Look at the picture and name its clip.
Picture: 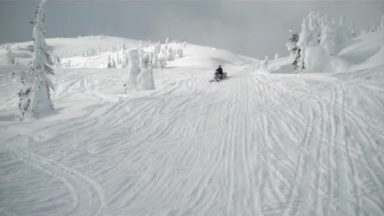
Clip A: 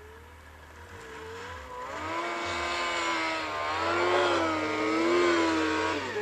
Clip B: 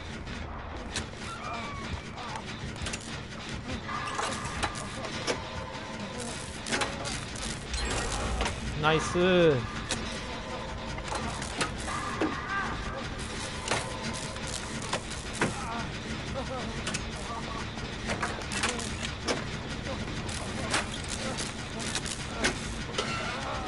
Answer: A